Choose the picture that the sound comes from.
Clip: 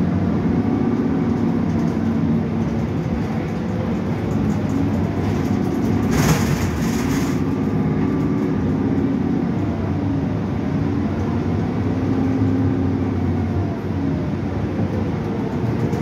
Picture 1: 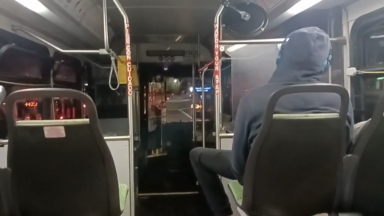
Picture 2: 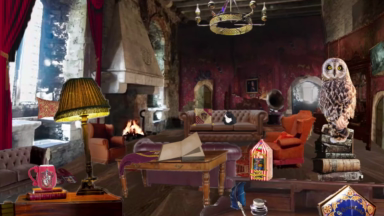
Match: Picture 1